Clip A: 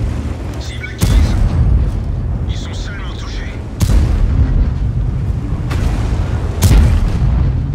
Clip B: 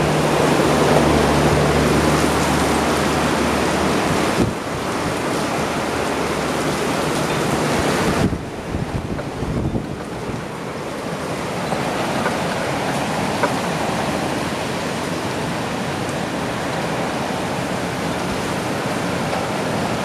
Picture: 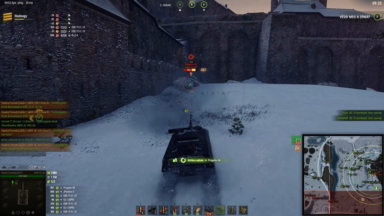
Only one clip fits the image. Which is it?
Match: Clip A